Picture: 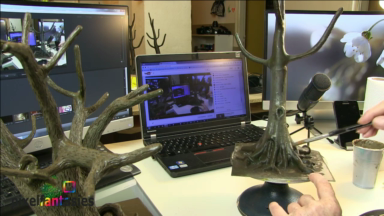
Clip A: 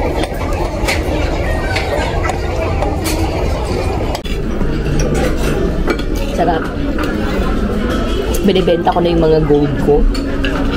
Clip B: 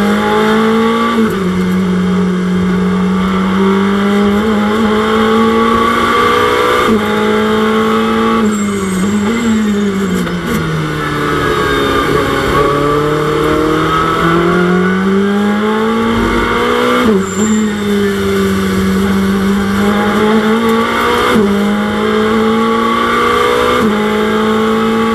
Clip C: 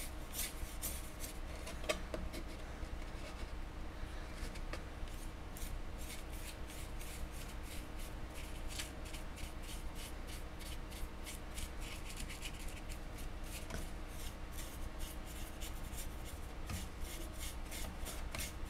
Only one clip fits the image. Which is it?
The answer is C